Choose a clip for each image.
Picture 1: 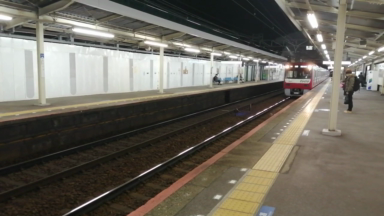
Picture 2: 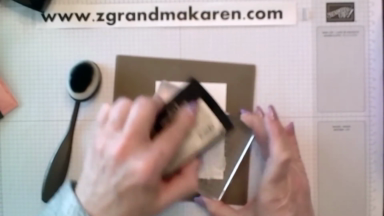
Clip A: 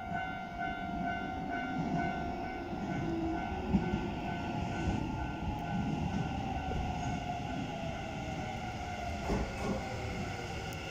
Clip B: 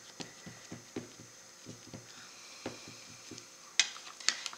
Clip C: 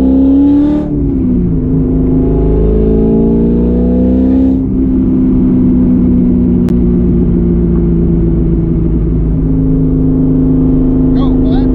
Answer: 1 A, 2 B